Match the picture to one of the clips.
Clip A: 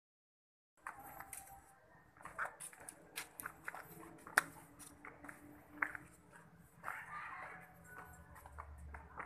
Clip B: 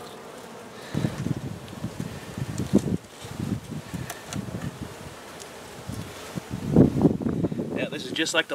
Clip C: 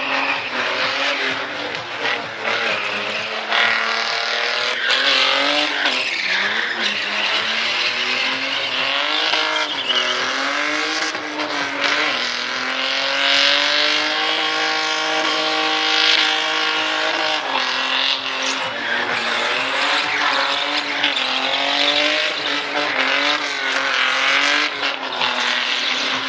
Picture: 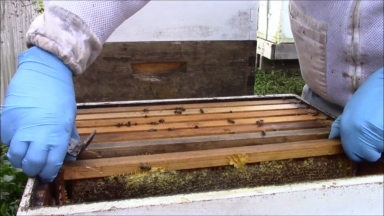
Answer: B